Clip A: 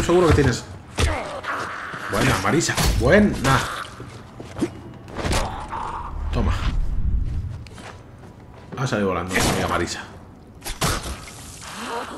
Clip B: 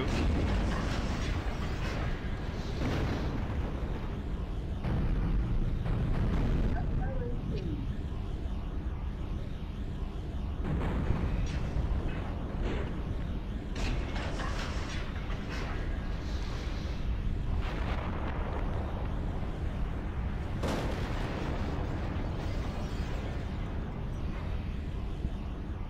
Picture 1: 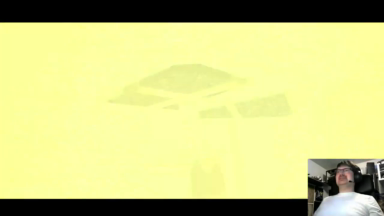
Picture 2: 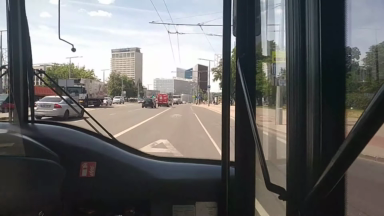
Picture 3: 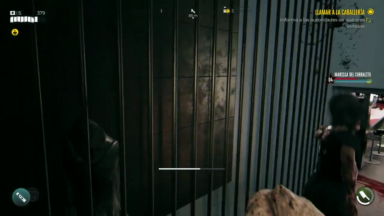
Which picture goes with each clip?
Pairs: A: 3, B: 1